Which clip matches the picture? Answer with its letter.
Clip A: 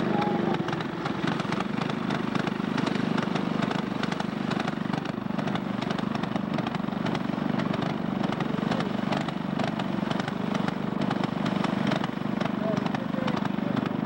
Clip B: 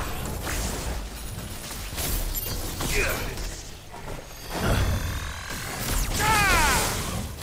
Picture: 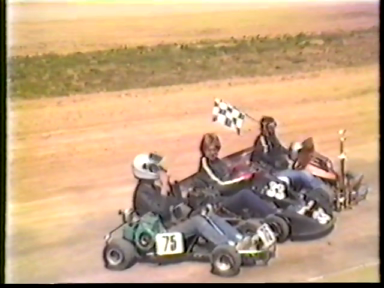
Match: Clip A